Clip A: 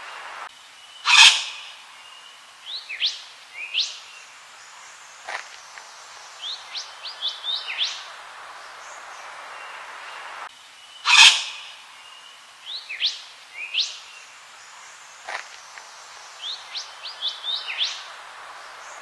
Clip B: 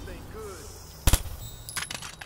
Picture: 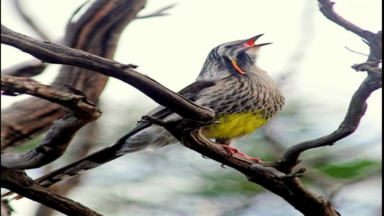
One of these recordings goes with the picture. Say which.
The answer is A